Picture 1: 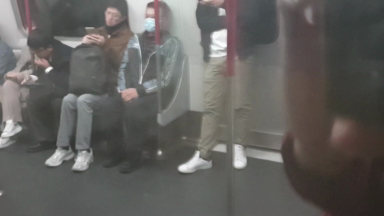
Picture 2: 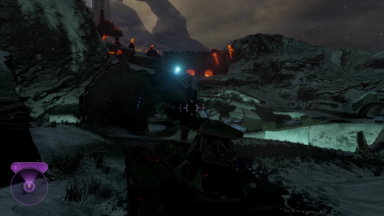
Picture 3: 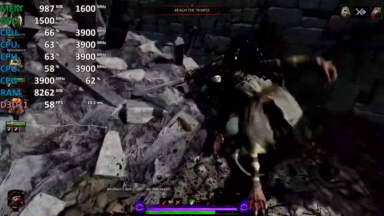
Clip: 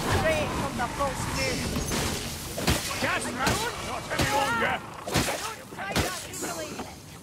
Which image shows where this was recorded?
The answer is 3